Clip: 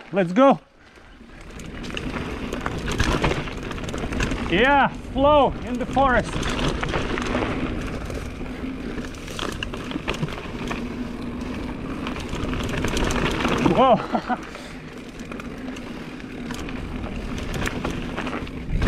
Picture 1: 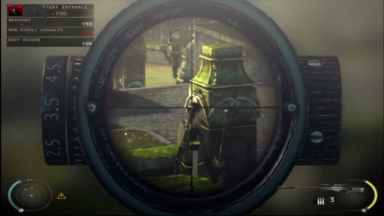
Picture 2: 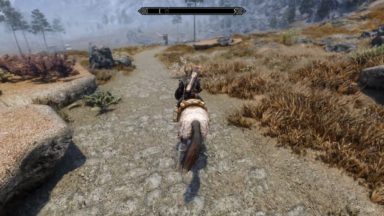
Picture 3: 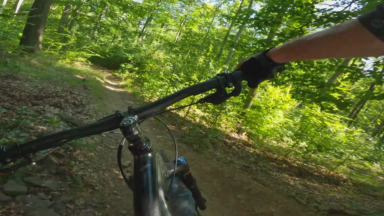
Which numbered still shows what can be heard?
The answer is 3